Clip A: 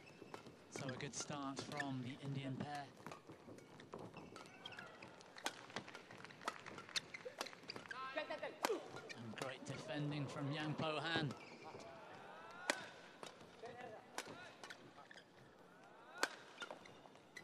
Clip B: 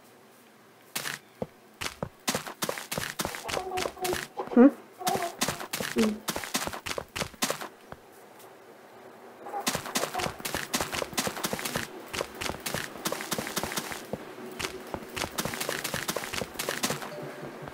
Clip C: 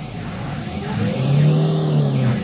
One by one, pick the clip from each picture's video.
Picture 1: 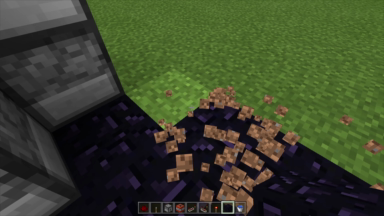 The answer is B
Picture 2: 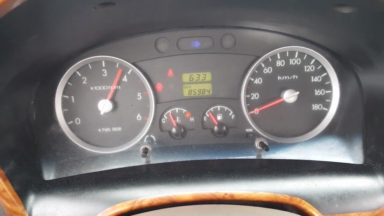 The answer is C